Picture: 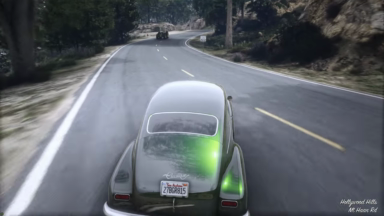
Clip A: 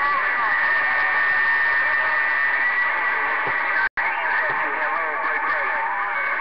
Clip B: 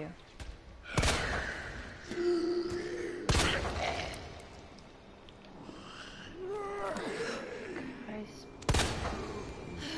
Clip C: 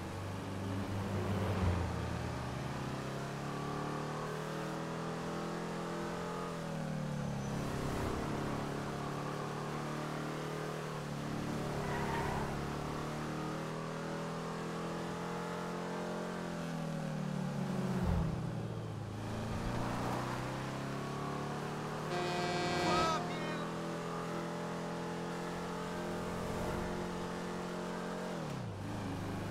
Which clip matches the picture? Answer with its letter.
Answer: C